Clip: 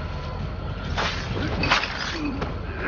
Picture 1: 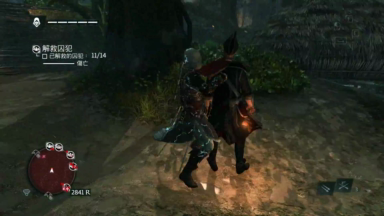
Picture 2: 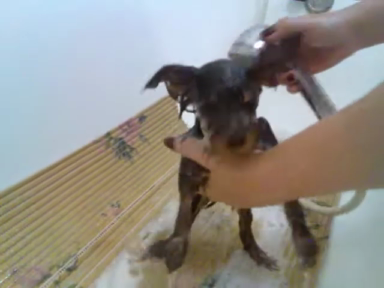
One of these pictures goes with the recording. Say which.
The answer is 1